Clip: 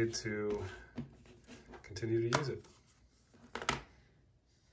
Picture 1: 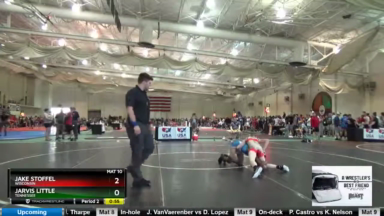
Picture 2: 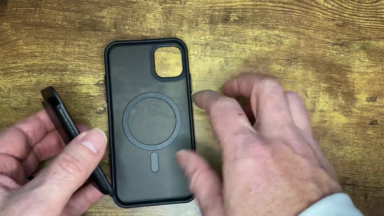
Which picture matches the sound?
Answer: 2